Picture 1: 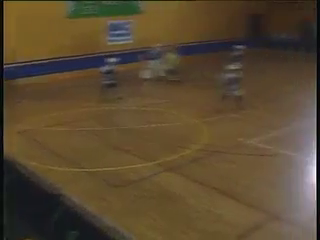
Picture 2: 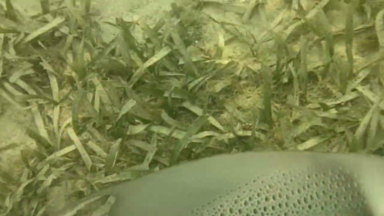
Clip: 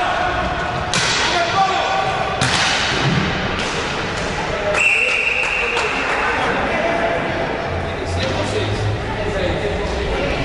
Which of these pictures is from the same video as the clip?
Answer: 1